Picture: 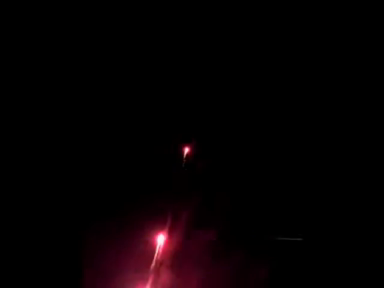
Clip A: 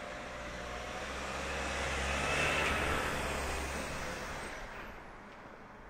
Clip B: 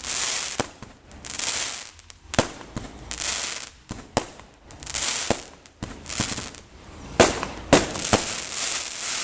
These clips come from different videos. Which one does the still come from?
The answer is B